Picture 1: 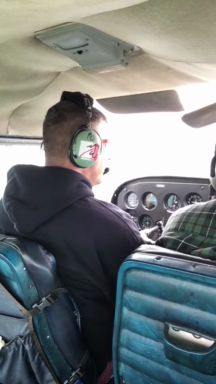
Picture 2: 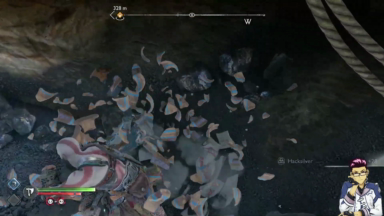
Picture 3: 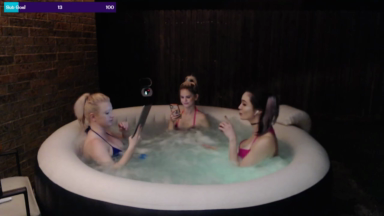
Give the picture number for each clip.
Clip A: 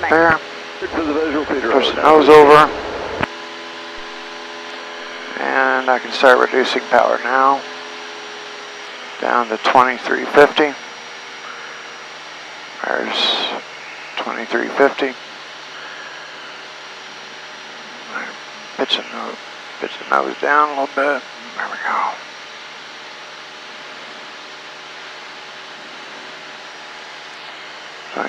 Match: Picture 1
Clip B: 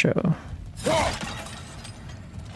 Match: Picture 2